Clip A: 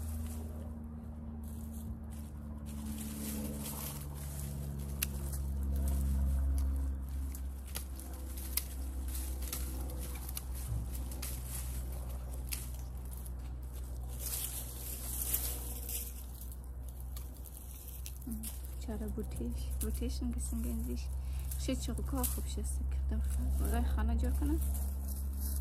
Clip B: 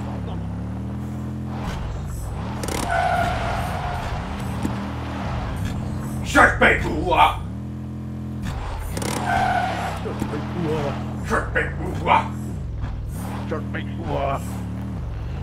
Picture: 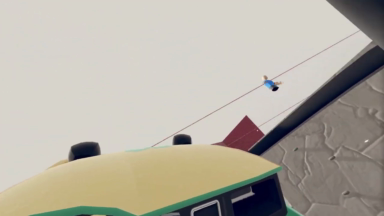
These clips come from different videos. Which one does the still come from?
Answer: B